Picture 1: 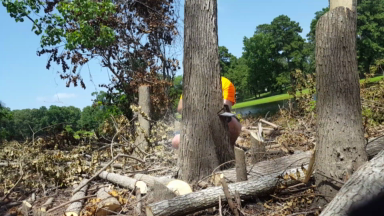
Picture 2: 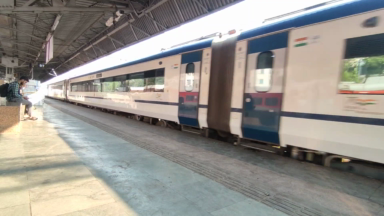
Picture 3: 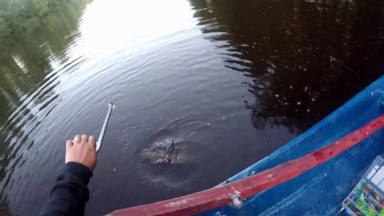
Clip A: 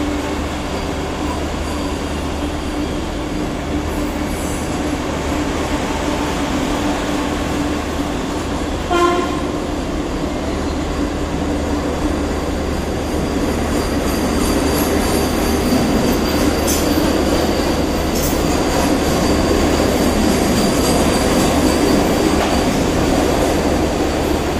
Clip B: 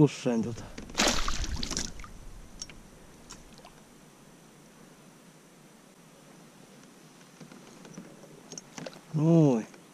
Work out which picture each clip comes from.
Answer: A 2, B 3